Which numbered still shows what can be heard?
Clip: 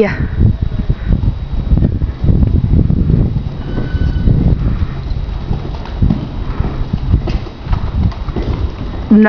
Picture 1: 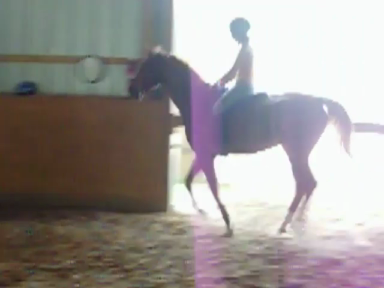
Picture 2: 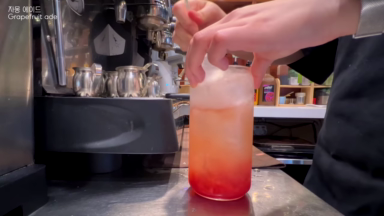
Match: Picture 1